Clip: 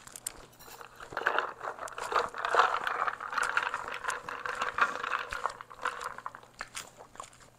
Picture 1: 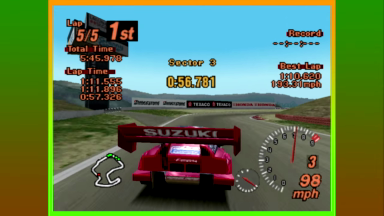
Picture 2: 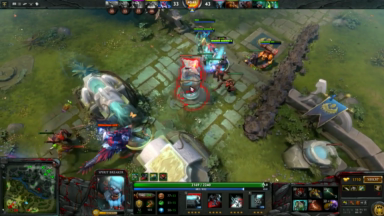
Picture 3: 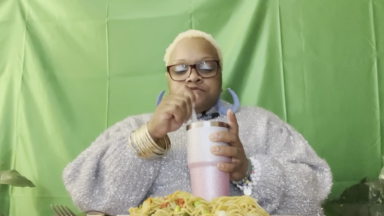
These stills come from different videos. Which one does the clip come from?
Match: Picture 3